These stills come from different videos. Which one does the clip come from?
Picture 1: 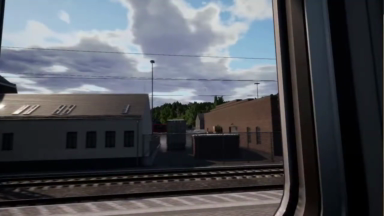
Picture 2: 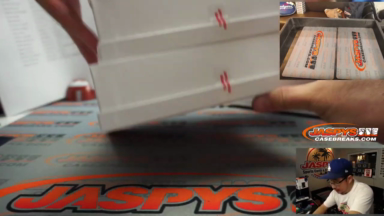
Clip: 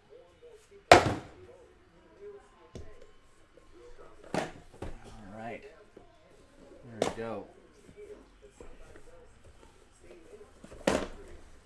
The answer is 2